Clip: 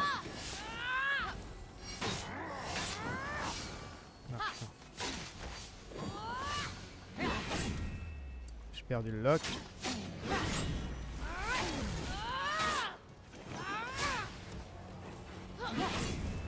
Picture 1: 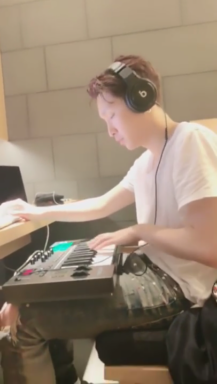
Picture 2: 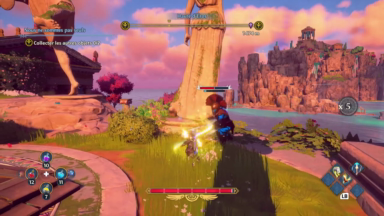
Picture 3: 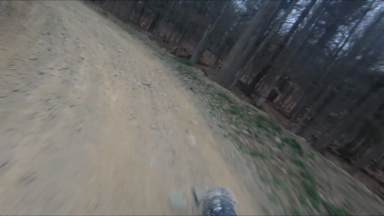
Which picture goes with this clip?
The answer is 2